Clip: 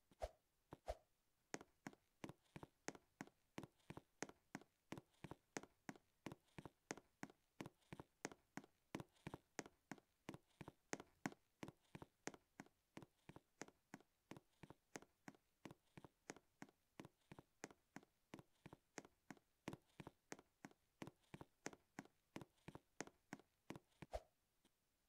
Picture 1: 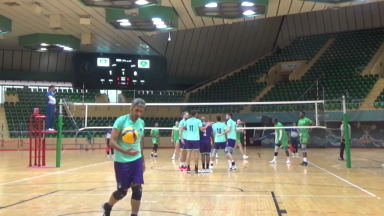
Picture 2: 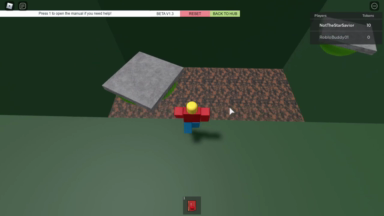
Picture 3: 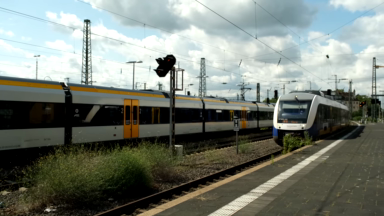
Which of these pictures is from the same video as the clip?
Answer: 2